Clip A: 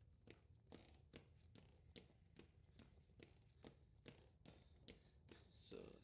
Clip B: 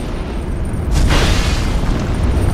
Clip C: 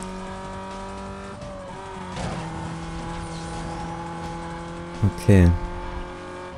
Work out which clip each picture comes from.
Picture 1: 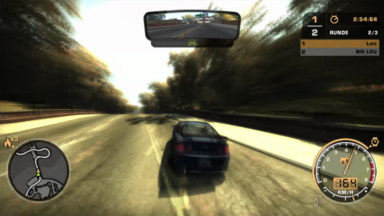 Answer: C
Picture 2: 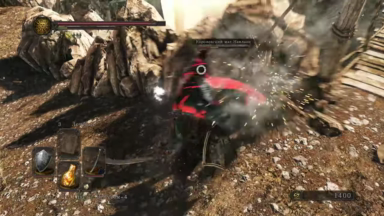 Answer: B